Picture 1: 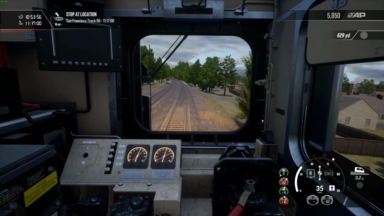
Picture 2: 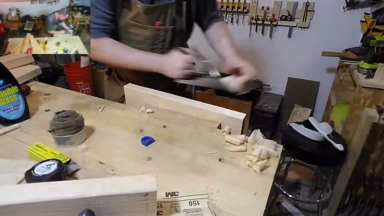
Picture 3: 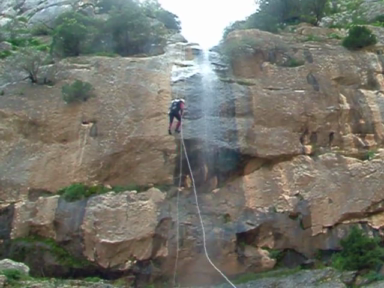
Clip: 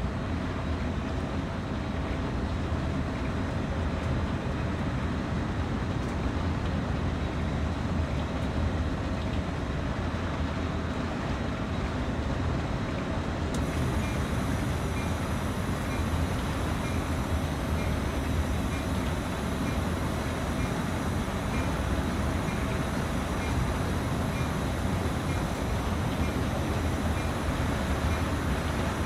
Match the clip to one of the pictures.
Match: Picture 1